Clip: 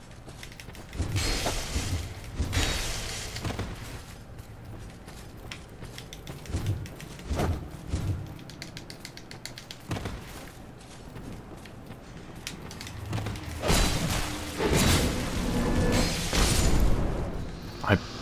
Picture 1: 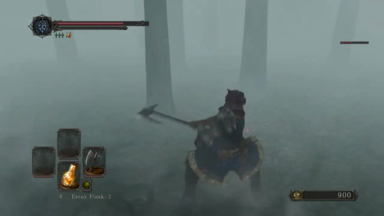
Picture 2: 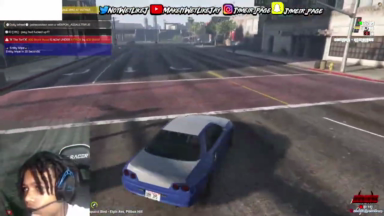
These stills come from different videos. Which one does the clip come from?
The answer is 1